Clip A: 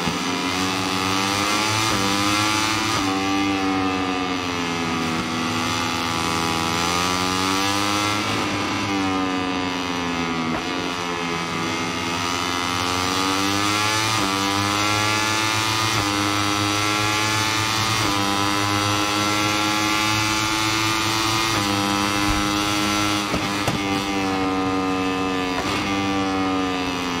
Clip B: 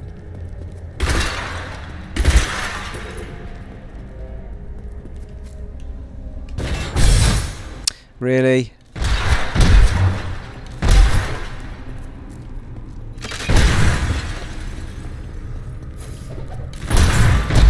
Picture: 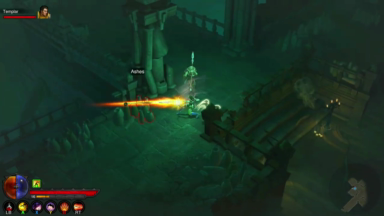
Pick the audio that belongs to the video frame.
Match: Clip B